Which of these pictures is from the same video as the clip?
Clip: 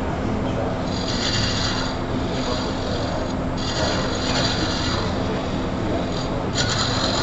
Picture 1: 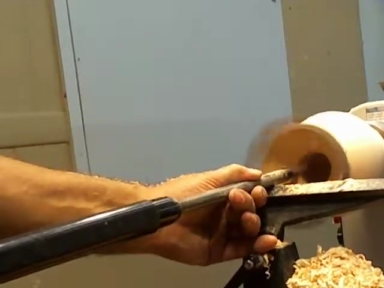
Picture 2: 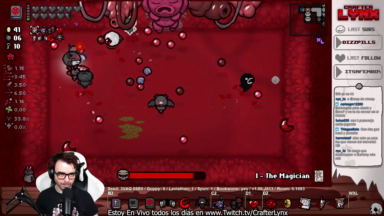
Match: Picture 1